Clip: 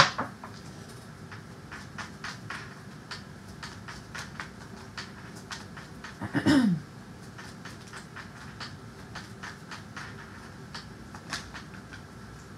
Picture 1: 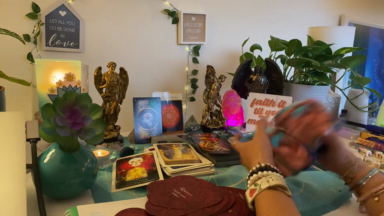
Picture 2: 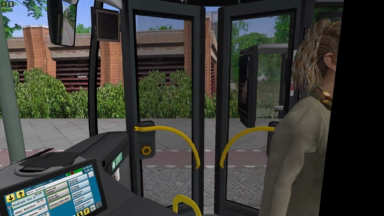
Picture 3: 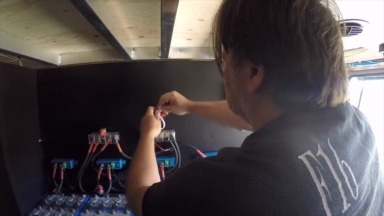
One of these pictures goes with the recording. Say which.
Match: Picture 1